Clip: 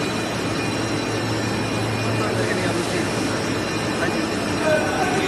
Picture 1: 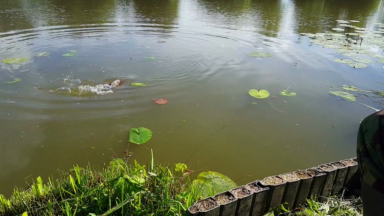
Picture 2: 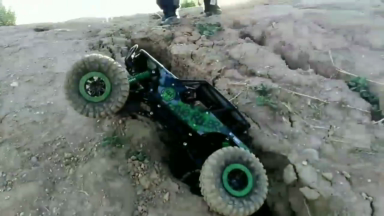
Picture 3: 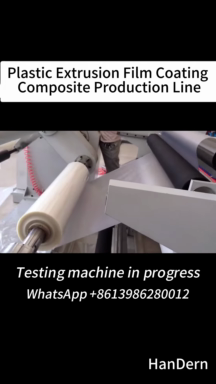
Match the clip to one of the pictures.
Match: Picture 3